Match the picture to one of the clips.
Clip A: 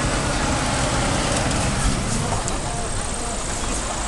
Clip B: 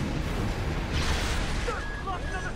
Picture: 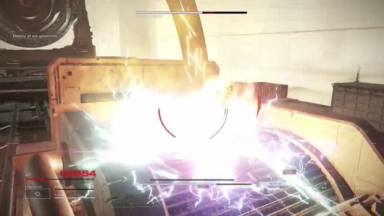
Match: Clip B